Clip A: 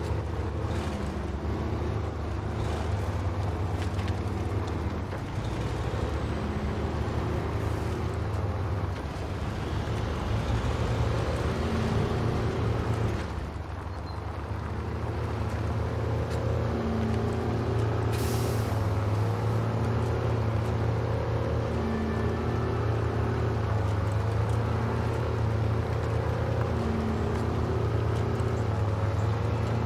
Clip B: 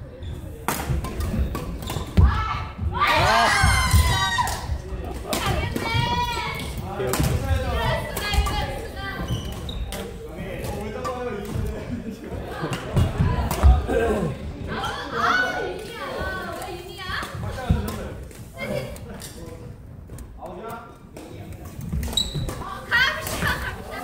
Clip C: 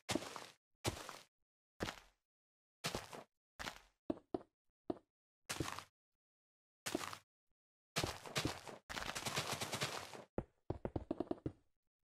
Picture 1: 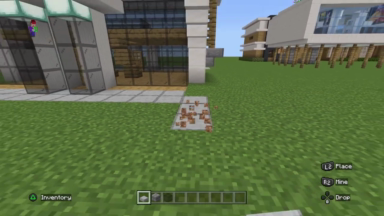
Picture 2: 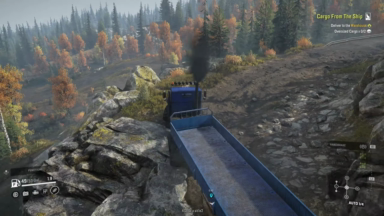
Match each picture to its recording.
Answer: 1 C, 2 A